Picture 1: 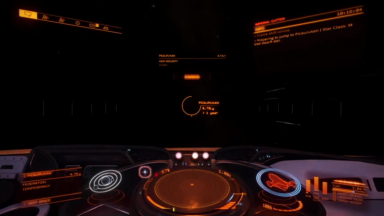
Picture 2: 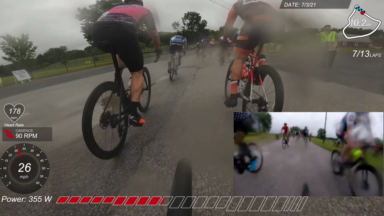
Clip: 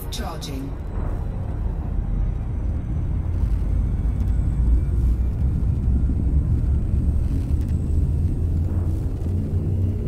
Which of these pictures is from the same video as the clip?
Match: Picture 1